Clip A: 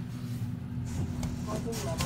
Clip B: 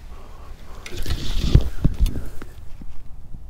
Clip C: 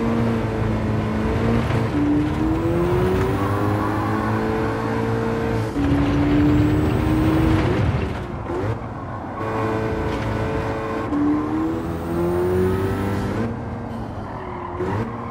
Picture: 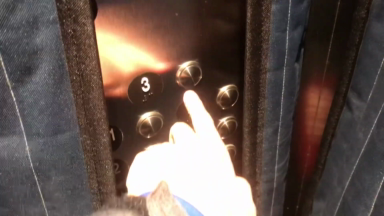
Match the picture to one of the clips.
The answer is A